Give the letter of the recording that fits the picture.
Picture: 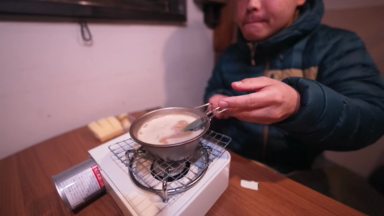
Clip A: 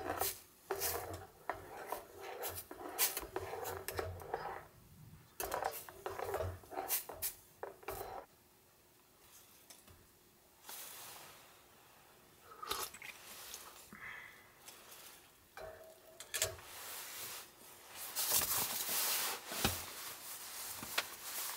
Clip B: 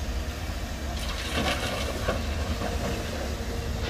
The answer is A